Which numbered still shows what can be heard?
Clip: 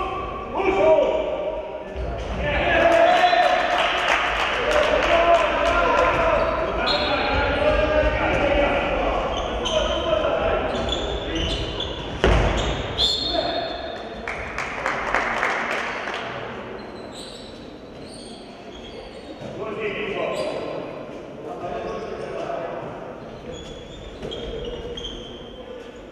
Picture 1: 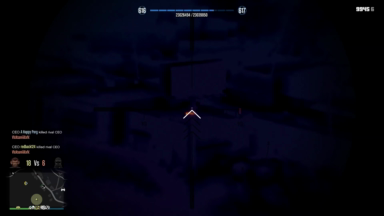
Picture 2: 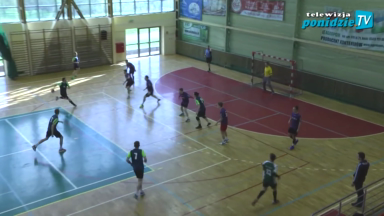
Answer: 2